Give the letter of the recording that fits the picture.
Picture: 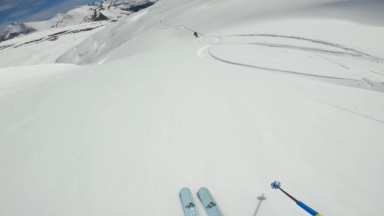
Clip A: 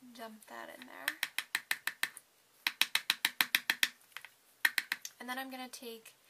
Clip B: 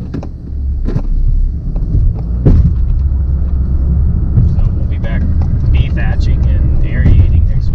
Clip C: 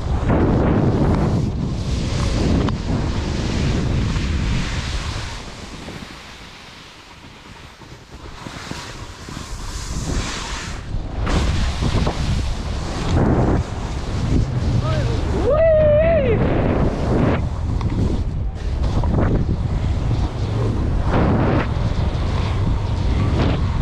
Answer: C